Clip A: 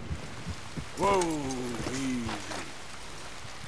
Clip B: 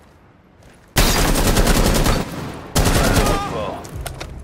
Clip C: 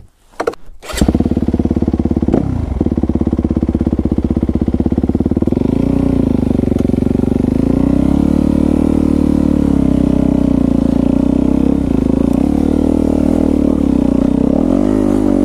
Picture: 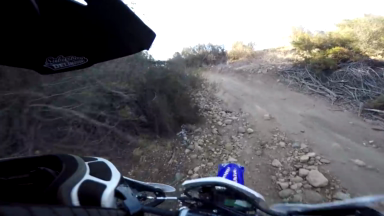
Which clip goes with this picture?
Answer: C